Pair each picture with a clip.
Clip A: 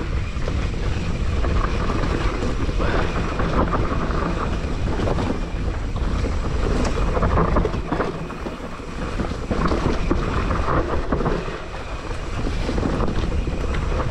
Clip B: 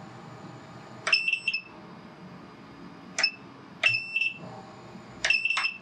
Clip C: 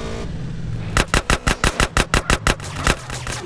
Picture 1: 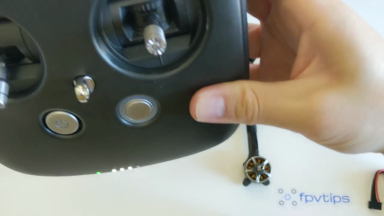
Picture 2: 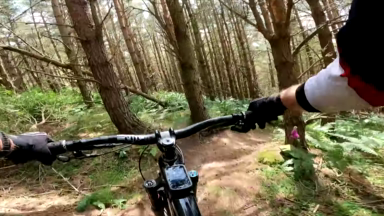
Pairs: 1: B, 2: A